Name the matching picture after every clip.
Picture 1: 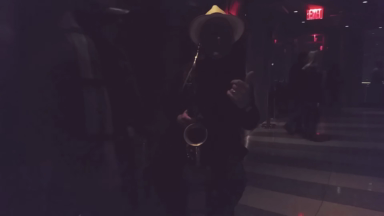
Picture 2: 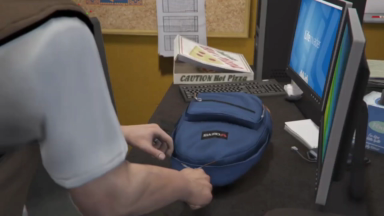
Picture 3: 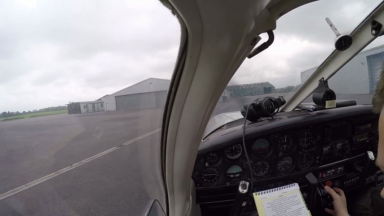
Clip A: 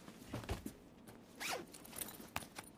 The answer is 2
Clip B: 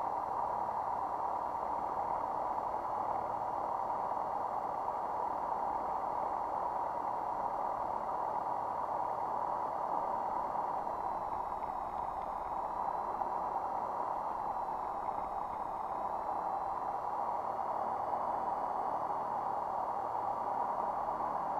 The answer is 3